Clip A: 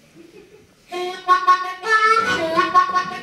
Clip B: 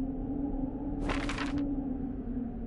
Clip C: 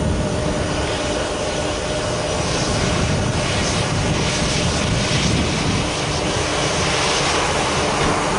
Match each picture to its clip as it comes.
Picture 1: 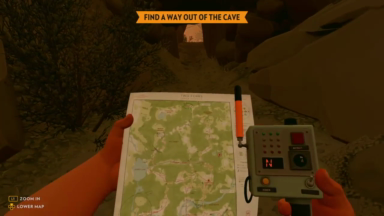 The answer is B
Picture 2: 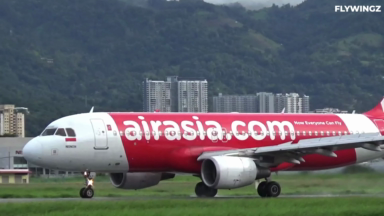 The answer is C